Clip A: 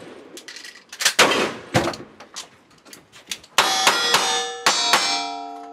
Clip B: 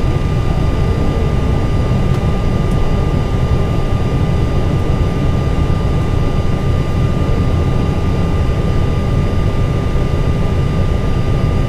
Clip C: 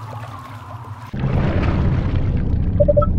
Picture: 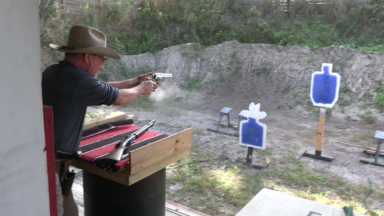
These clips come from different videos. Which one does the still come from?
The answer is A